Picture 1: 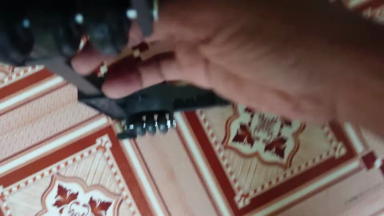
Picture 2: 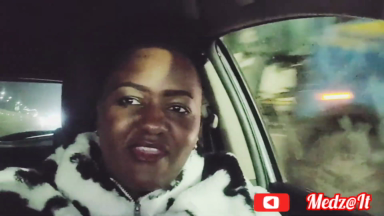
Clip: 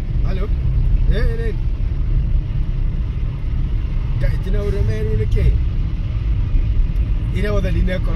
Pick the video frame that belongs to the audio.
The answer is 2